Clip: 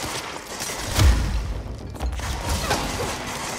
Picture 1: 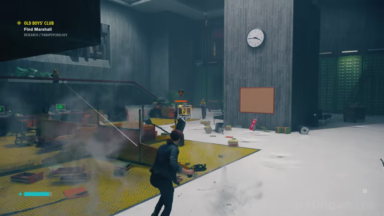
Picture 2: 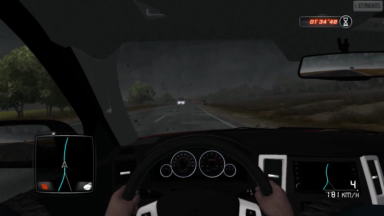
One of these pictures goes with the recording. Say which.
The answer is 1